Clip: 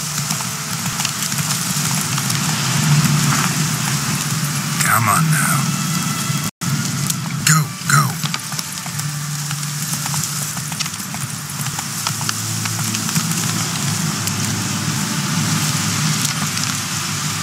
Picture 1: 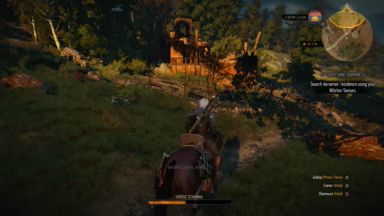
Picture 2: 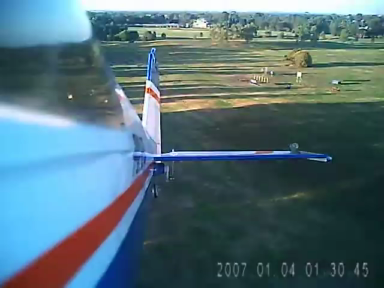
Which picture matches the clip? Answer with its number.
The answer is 1